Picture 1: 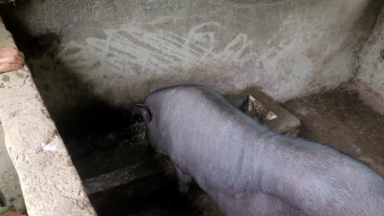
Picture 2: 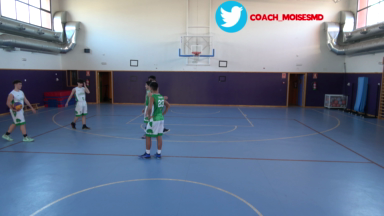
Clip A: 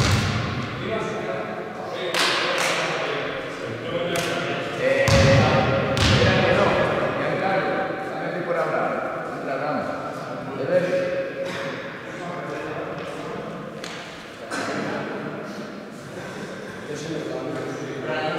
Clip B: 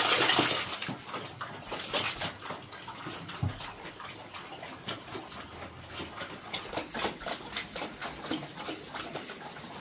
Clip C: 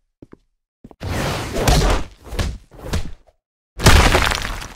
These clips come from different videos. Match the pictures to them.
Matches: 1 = B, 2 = A